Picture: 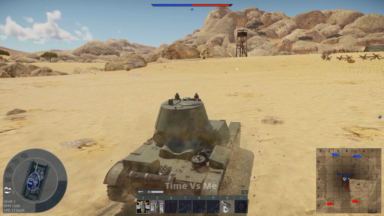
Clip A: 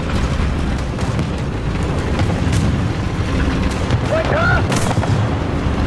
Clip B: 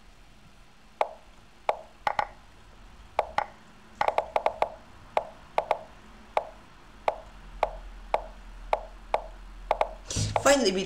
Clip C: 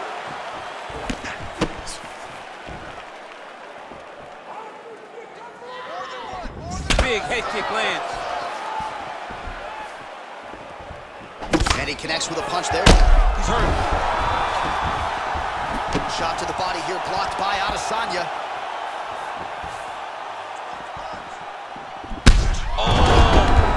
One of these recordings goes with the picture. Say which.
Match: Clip A